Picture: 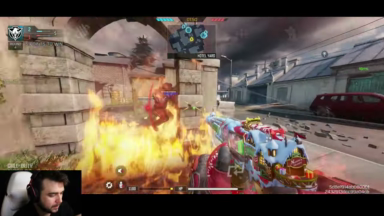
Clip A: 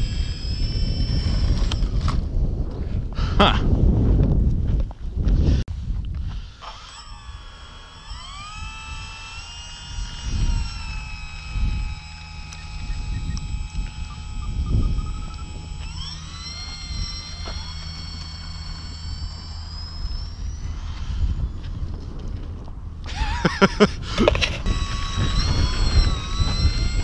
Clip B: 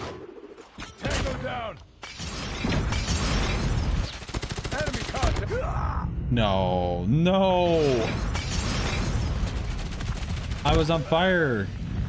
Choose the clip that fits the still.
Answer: B